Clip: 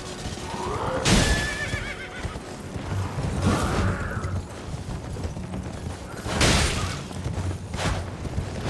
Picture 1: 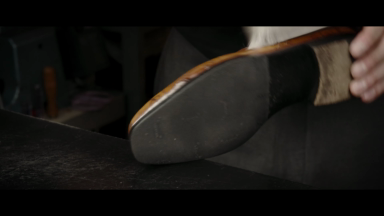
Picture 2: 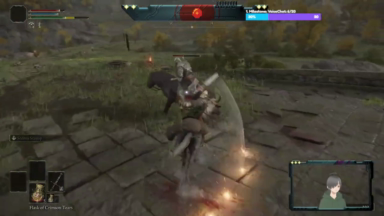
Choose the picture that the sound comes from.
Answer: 2